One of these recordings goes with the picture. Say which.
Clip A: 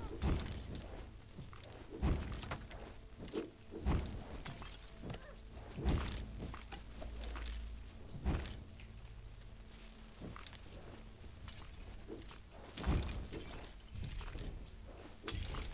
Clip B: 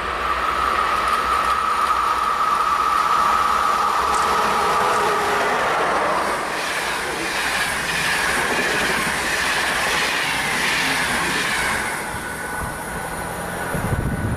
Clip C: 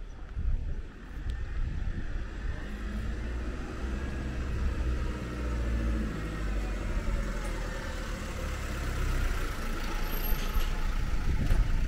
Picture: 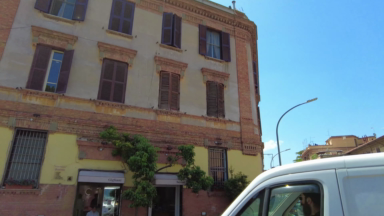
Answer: C